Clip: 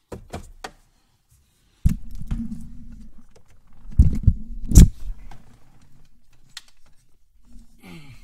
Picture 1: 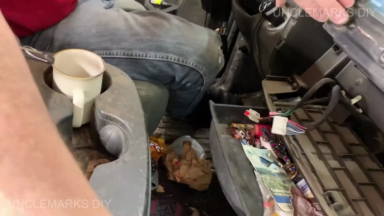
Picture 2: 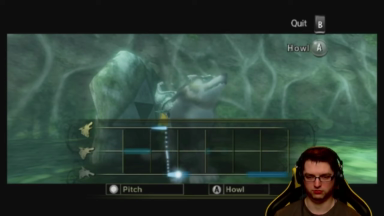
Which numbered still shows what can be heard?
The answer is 1